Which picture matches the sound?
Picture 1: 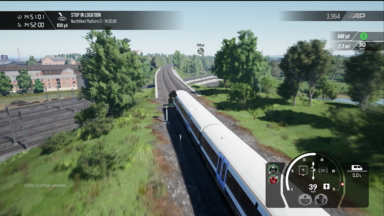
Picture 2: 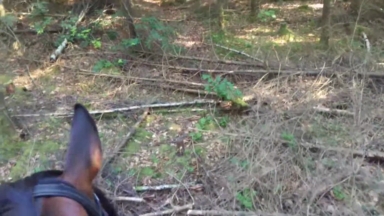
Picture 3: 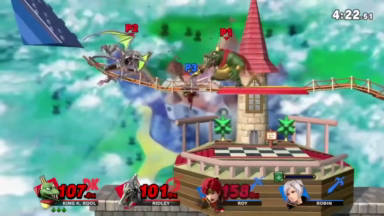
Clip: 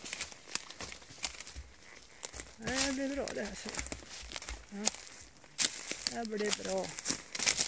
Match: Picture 2